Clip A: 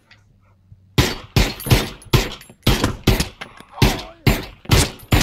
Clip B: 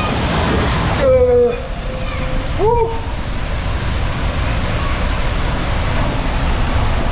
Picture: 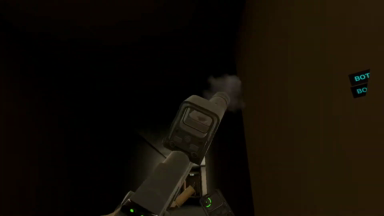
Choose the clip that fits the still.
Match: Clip A